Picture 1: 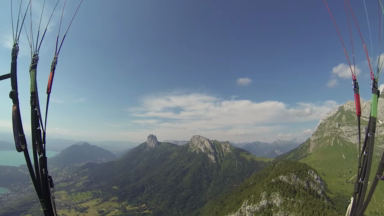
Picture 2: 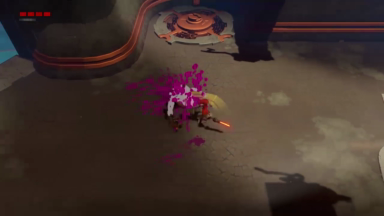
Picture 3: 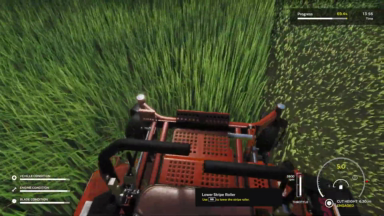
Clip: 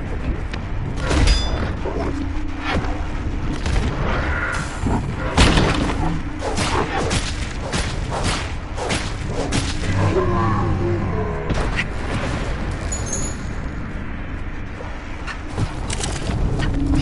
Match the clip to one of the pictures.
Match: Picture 2